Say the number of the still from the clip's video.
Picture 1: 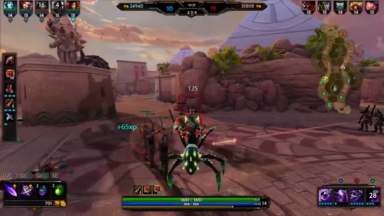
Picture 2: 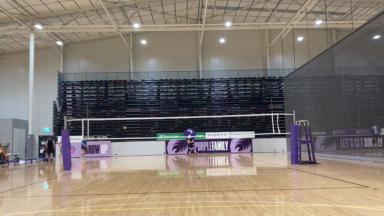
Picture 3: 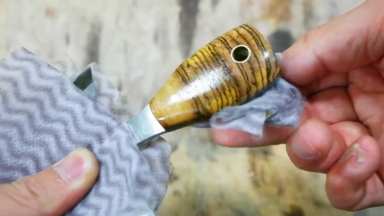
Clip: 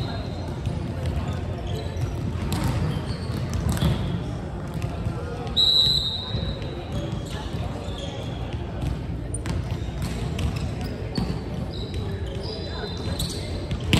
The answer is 2